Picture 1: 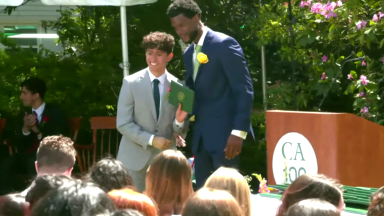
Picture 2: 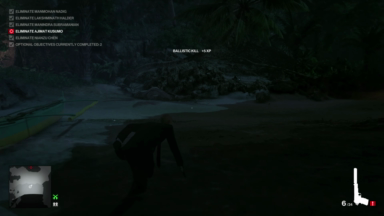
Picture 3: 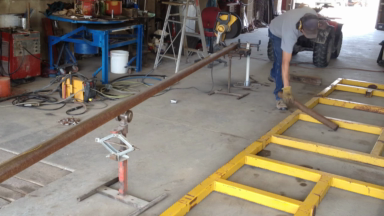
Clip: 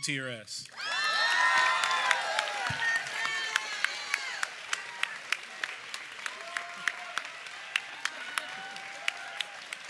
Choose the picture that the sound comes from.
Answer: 1